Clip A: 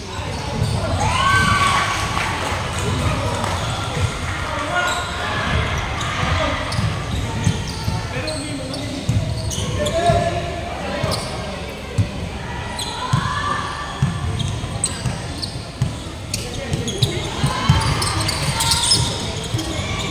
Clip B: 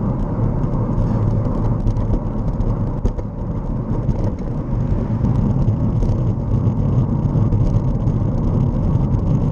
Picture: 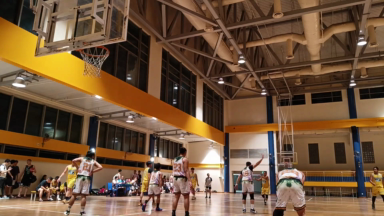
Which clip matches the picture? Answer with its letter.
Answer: A